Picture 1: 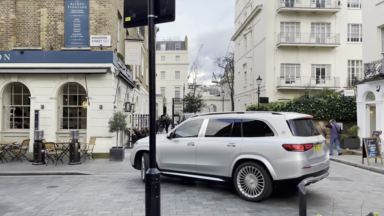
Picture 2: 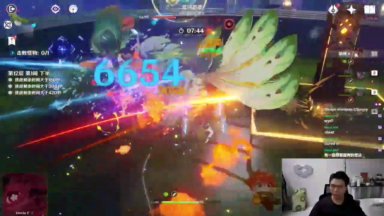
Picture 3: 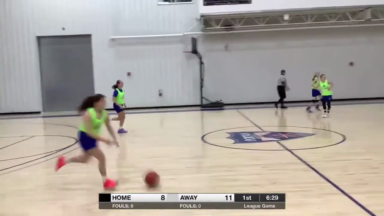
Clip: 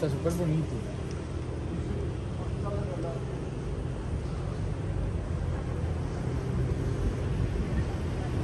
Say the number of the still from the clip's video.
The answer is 1